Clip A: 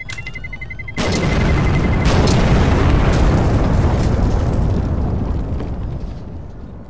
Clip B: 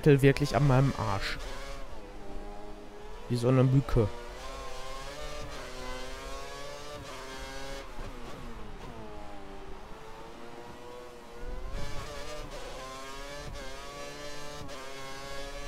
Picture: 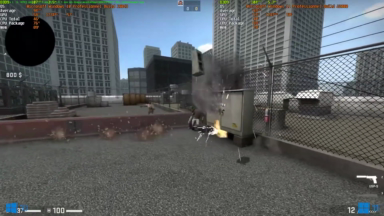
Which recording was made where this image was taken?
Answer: A